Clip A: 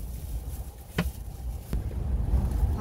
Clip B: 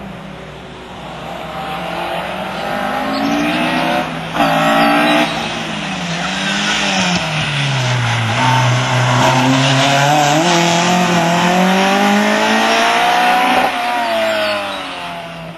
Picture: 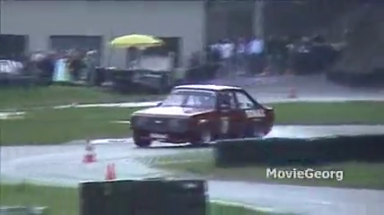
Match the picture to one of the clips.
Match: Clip B